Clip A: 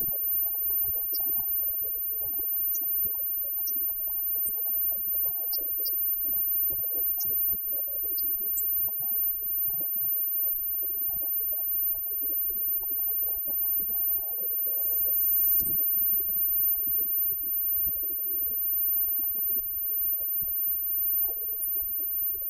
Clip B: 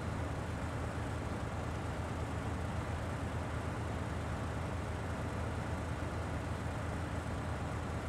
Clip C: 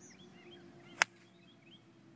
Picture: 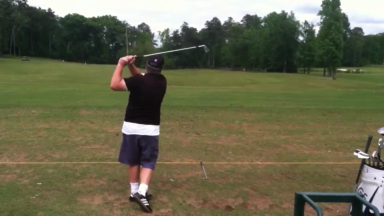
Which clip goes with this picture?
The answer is C